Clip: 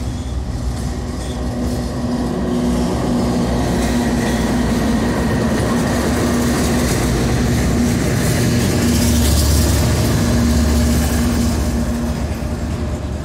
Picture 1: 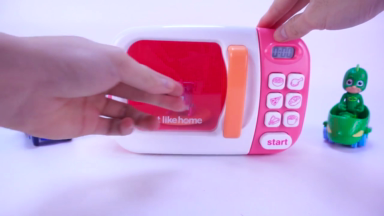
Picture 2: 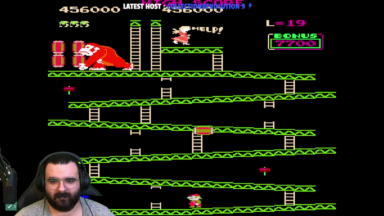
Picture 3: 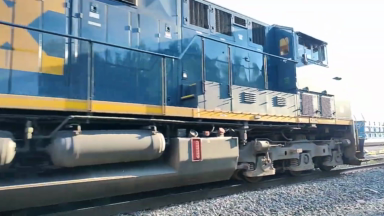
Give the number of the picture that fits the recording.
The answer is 3